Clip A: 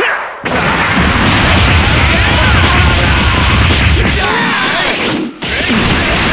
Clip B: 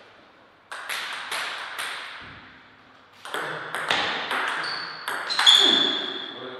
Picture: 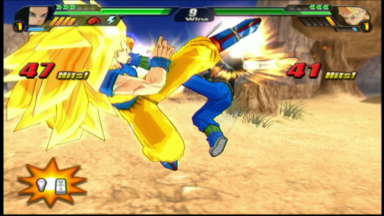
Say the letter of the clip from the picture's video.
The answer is A